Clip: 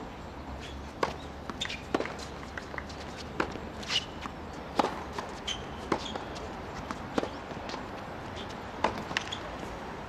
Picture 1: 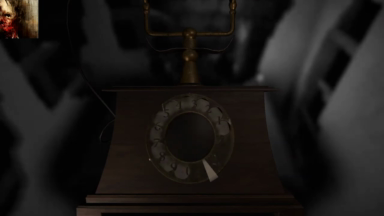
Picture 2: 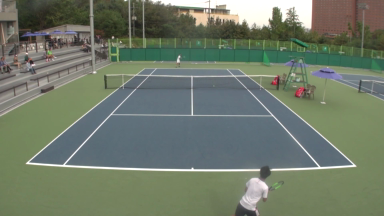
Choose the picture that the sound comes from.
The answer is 2